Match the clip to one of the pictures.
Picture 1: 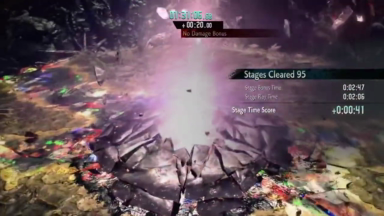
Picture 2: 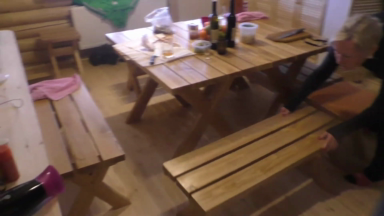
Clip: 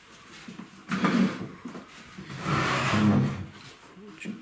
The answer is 2